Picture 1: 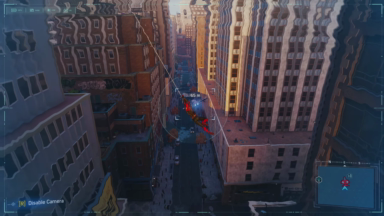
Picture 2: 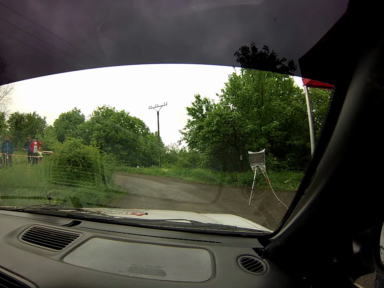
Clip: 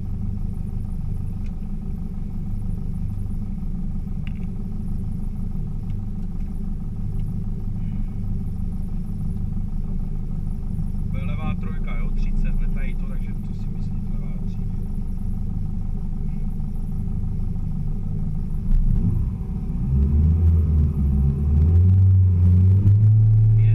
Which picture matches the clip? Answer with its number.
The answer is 2